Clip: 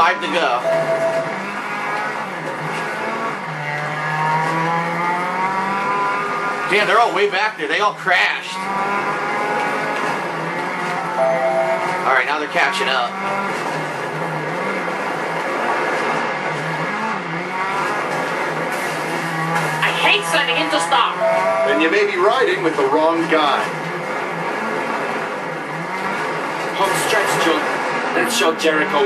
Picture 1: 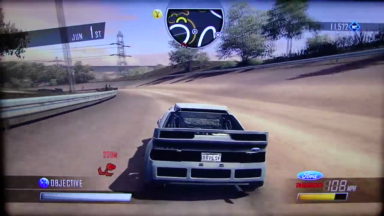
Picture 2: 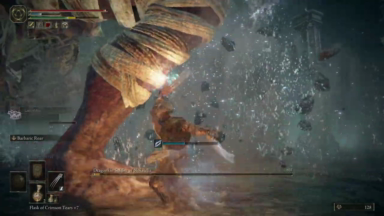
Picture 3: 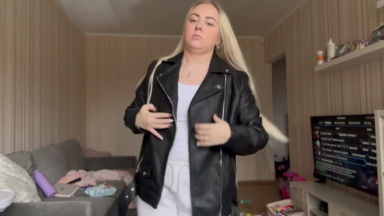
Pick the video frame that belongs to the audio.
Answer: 1